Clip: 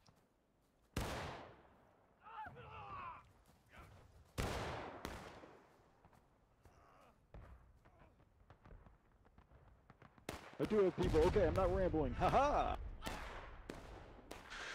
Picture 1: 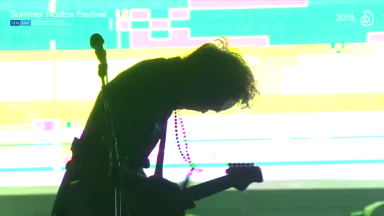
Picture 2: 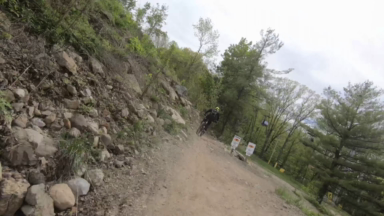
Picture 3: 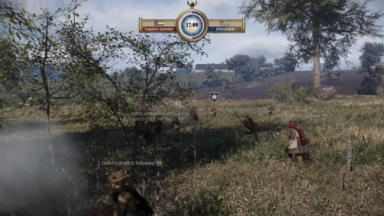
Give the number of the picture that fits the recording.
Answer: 3